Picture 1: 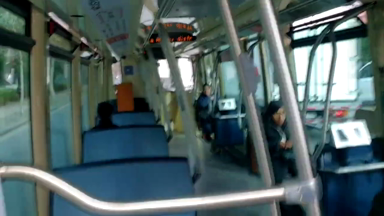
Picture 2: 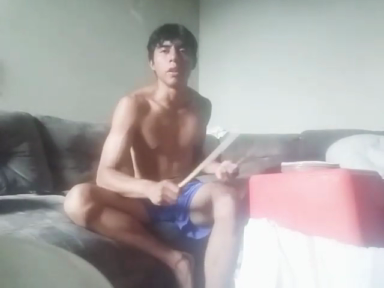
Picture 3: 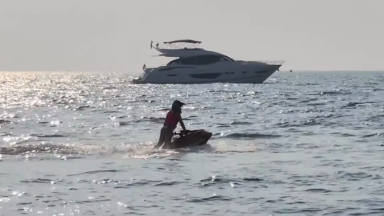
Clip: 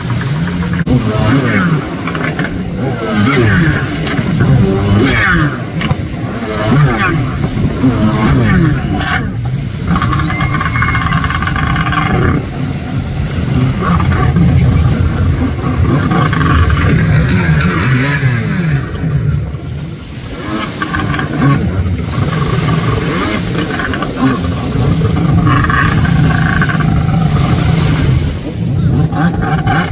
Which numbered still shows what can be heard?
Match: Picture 3